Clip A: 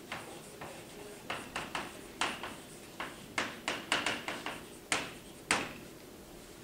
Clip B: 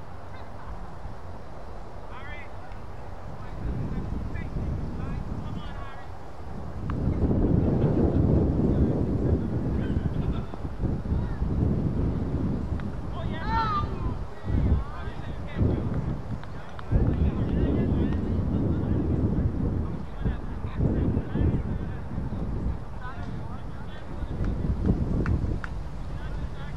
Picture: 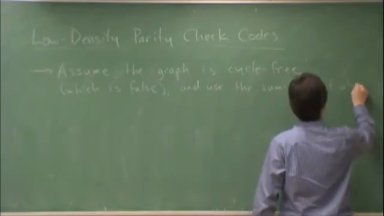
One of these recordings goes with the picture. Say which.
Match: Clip A